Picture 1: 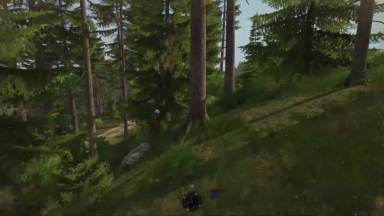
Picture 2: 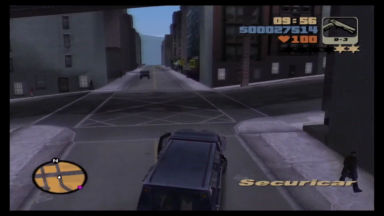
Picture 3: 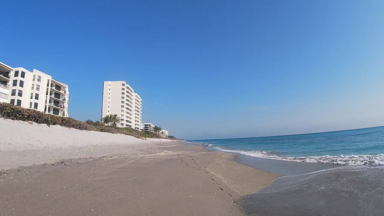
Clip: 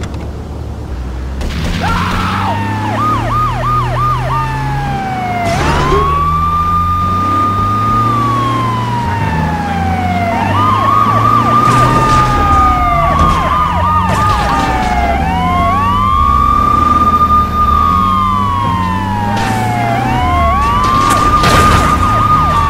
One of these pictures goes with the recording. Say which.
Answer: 2